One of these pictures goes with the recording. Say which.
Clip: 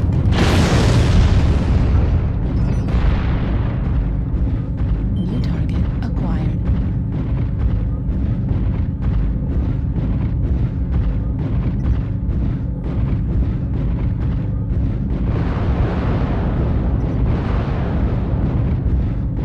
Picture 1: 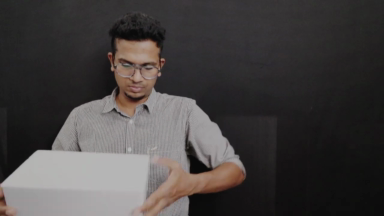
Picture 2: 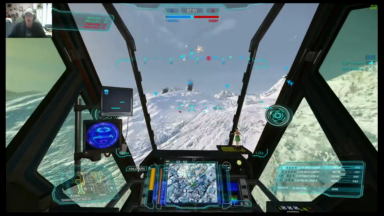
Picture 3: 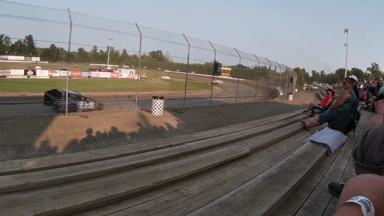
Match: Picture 2